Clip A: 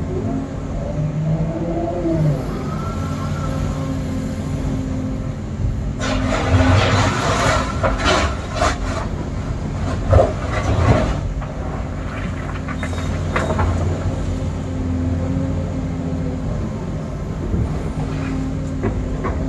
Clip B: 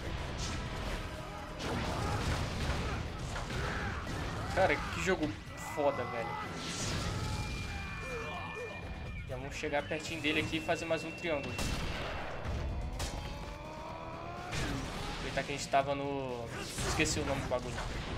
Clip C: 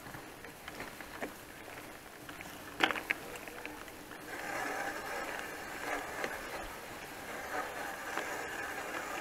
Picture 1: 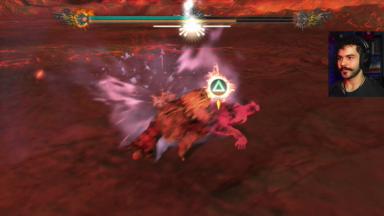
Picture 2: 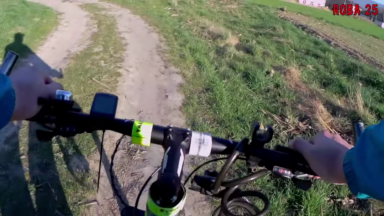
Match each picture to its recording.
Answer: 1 B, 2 C